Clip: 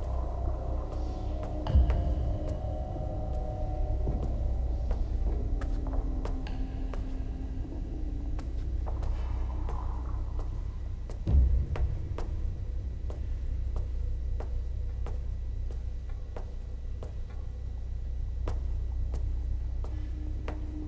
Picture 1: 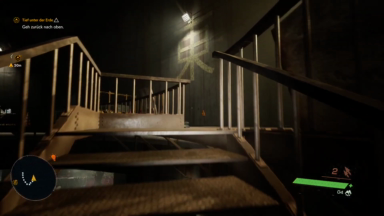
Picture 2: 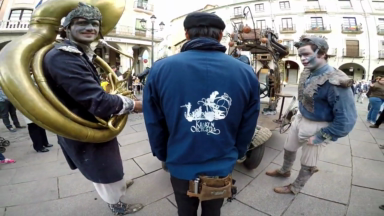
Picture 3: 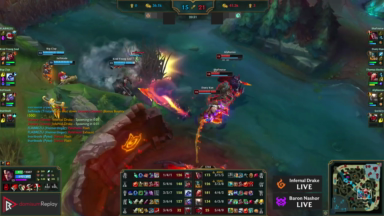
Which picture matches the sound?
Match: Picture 1